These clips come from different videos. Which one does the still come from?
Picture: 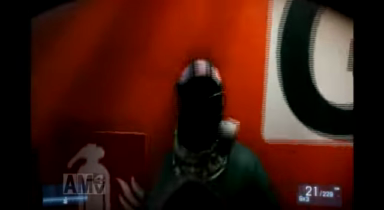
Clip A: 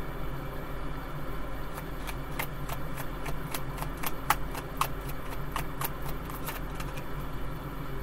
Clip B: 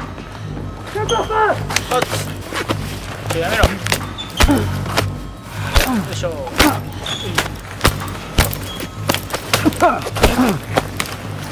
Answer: B